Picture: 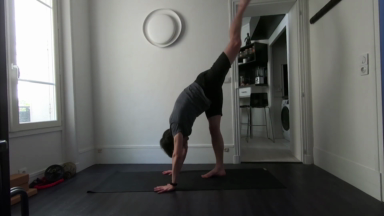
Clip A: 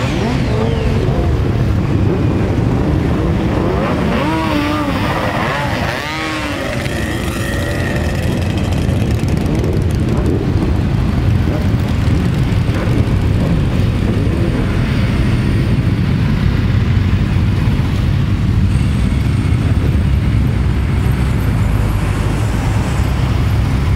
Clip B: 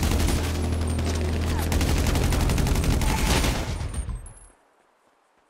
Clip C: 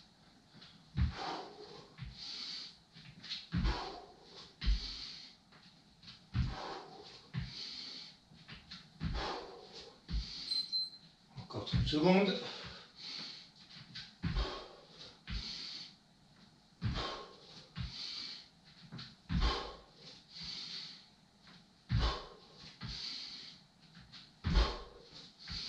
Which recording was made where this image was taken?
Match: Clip C